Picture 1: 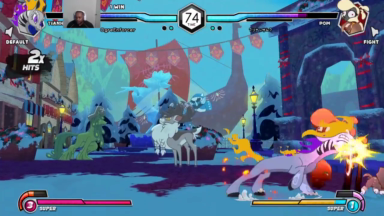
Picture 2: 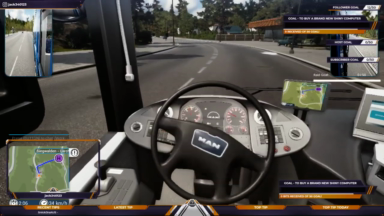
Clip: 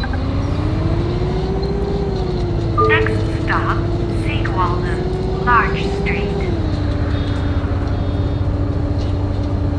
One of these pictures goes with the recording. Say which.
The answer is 2